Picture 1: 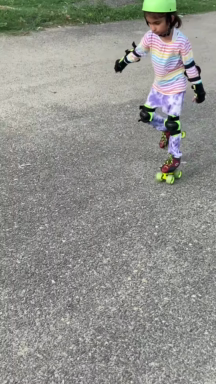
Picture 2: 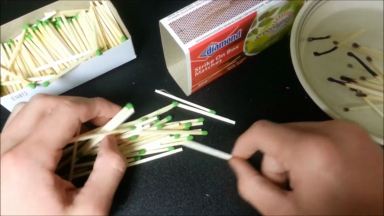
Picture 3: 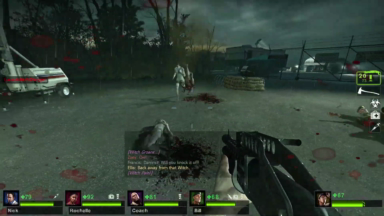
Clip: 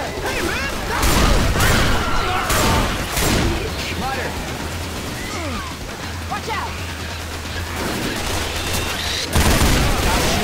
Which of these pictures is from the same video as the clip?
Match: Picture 3